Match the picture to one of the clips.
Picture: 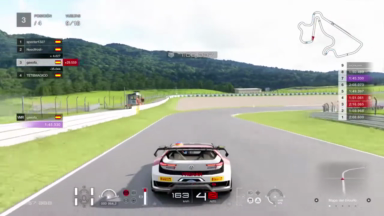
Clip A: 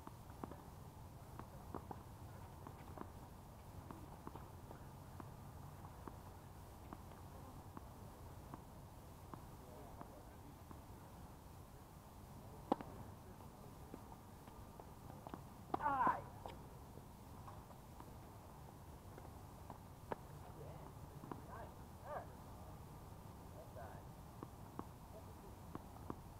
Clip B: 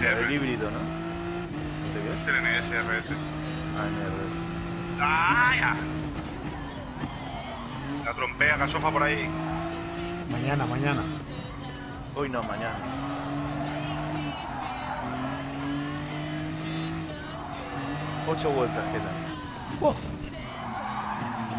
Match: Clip B